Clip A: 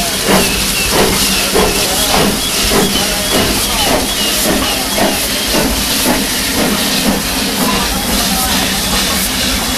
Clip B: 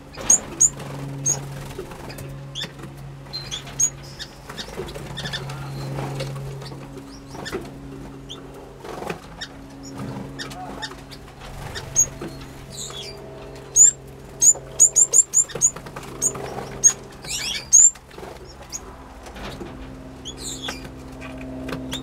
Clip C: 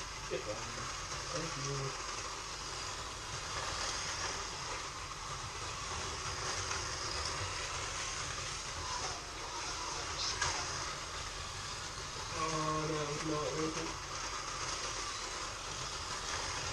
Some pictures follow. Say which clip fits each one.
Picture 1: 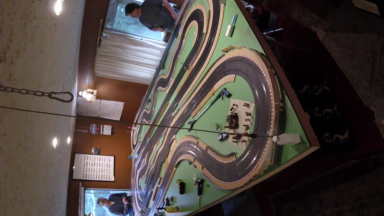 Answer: C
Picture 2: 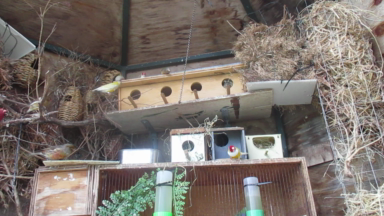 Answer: B